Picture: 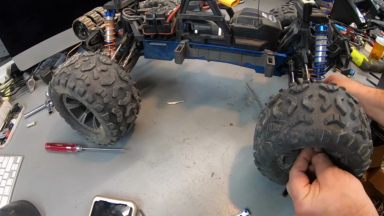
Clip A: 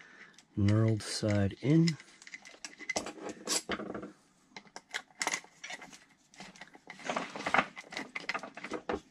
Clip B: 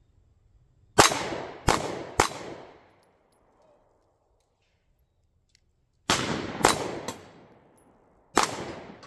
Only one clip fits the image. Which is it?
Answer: A